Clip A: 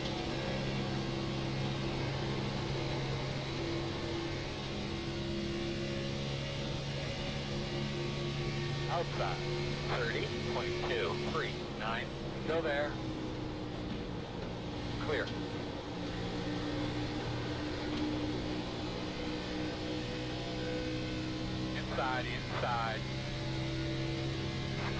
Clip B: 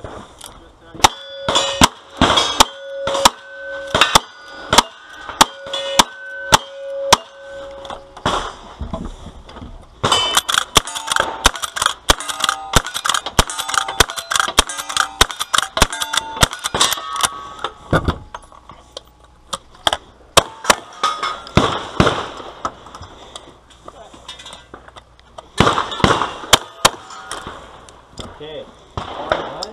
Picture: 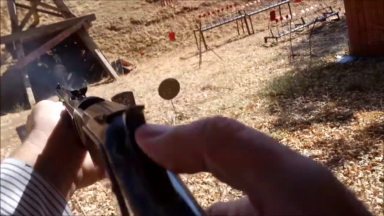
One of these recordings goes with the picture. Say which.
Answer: B